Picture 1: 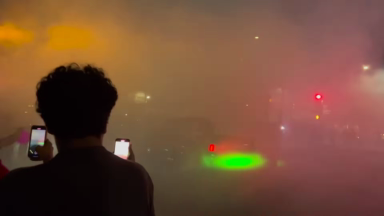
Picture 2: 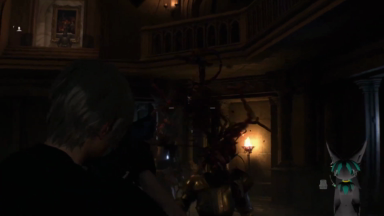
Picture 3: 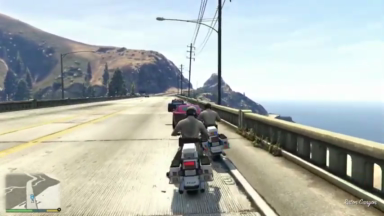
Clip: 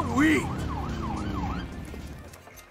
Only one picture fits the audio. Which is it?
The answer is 3